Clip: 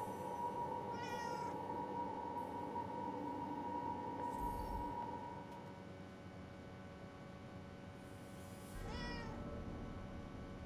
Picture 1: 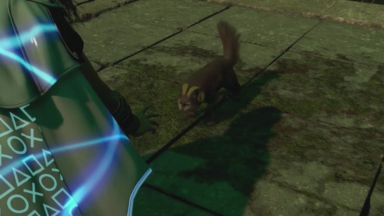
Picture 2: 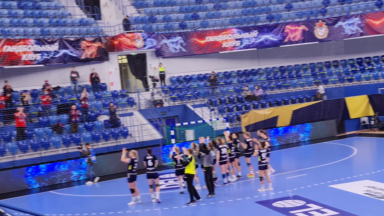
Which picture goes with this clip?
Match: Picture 1